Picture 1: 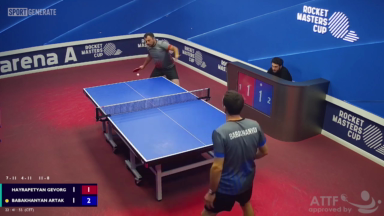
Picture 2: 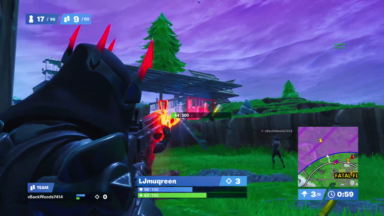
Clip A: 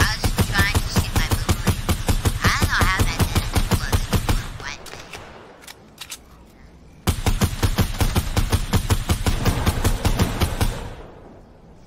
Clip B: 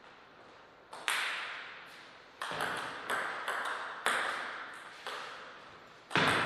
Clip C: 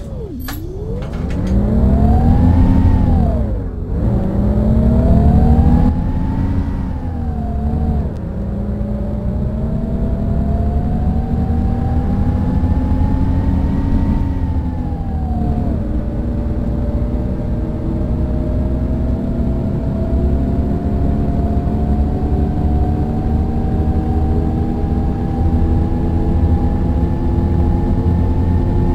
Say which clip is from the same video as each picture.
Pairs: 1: B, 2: A